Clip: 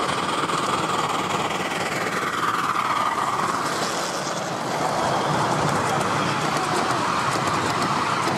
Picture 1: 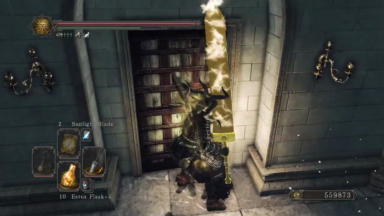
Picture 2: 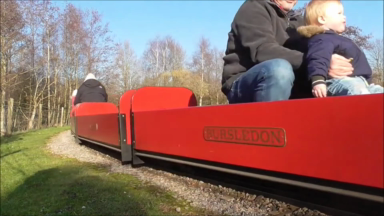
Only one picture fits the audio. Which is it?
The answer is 2